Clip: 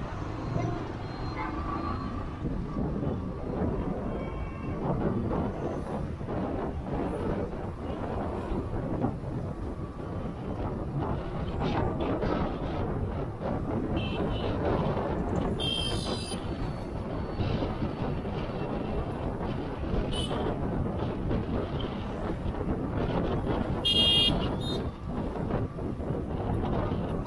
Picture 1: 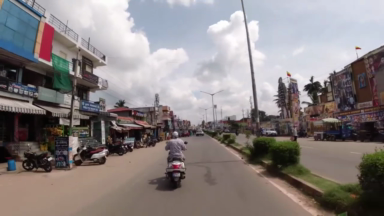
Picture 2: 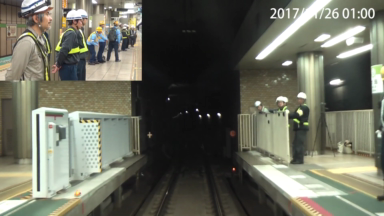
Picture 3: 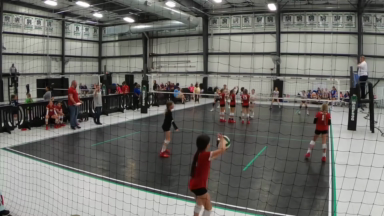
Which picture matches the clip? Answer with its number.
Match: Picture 1